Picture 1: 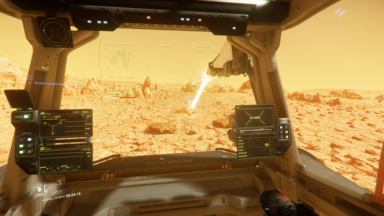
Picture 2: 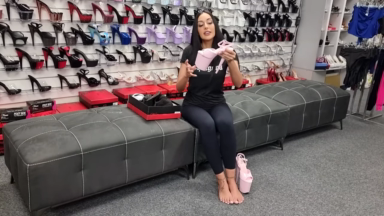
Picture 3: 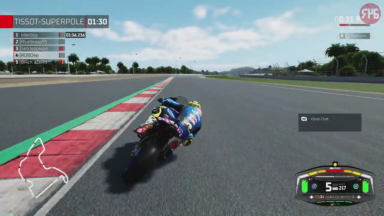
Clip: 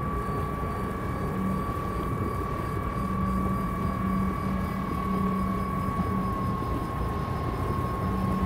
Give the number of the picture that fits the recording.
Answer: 1